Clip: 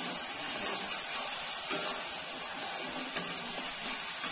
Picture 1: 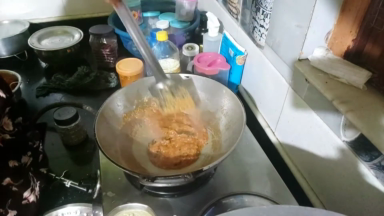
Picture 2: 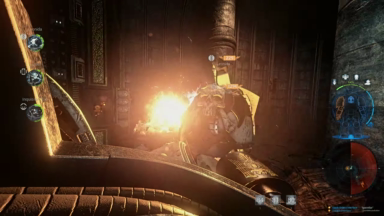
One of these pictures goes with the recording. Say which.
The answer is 1